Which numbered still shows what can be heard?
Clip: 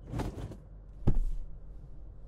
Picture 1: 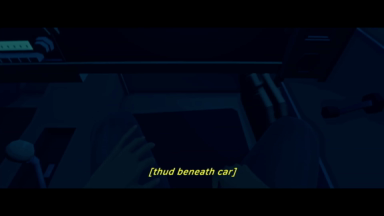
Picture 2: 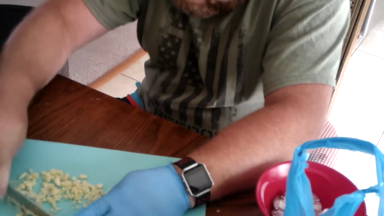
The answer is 1